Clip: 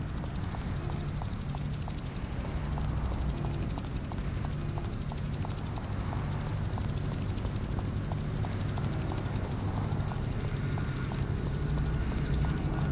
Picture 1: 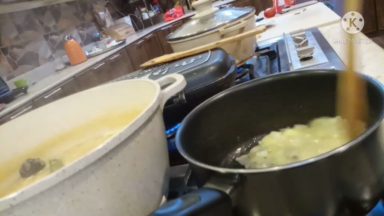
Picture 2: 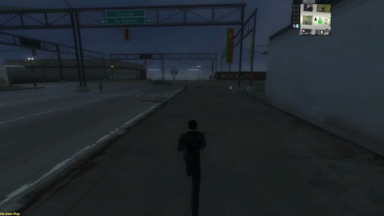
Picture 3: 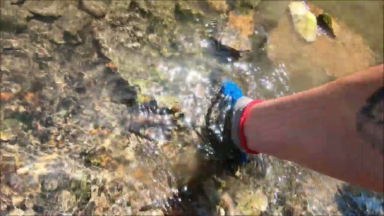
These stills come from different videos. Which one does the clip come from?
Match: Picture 2